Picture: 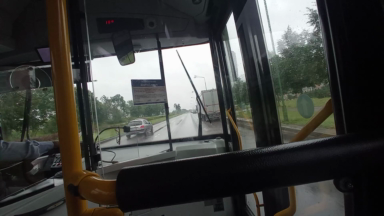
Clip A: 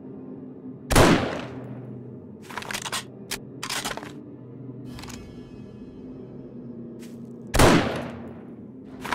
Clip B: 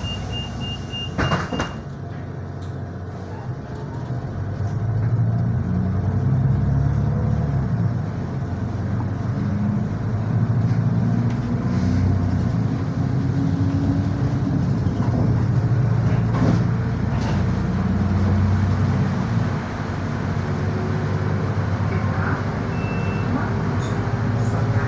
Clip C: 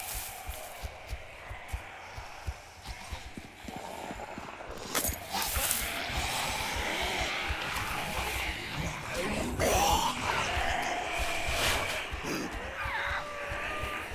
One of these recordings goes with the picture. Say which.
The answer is B